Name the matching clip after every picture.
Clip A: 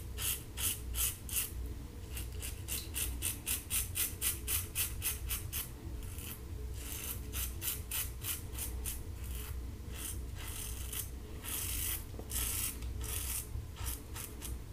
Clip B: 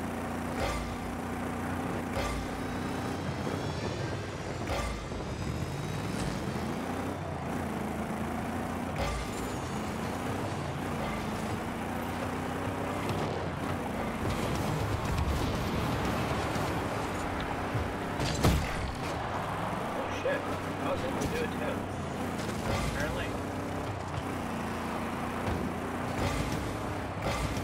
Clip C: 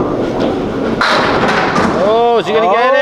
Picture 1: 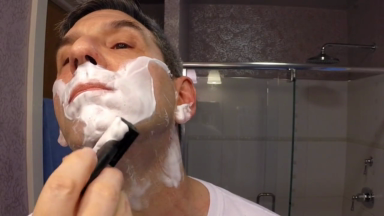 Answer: A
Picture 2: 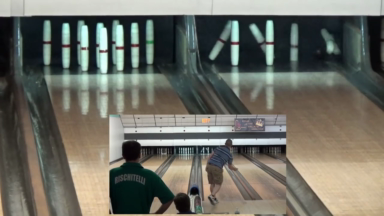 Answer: C